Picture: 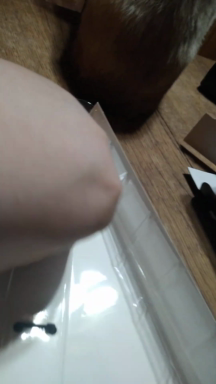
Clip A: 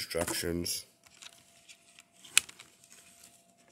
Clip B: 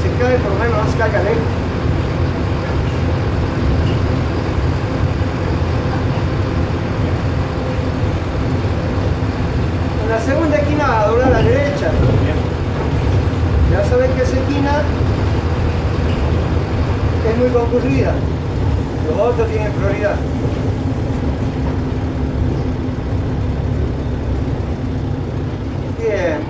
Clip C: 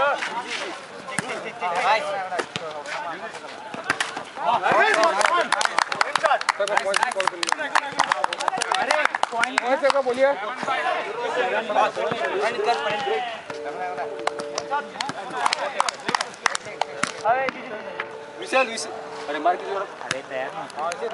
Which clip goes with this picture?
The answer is A